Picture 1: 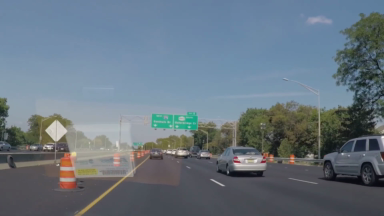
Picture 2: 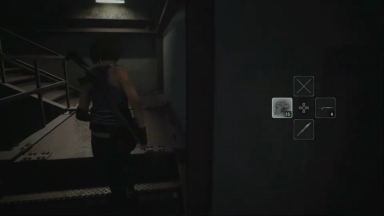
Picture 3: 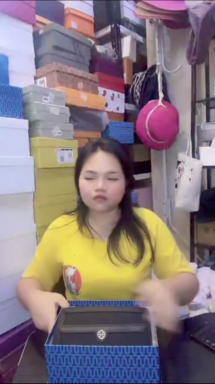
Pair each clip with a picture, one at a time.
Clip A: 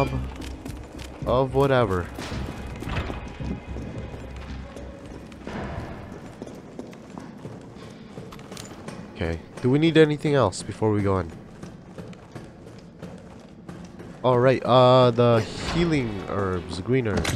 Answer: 2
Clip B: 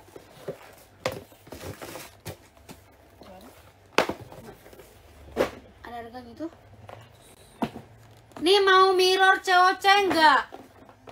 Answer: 3